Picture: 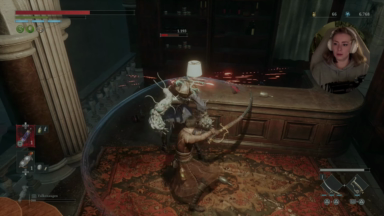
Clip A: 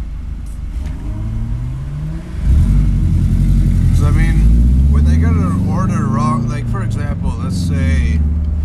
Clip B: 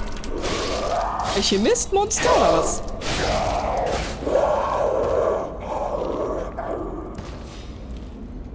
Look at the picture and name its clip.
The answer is B